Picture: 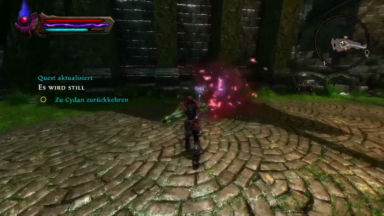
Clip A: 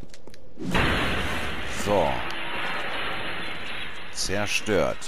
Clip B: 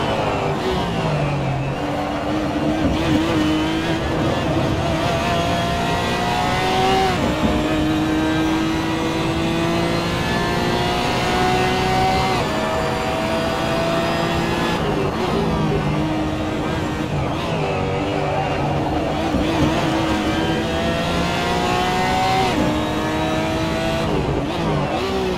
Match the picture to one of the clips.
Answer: A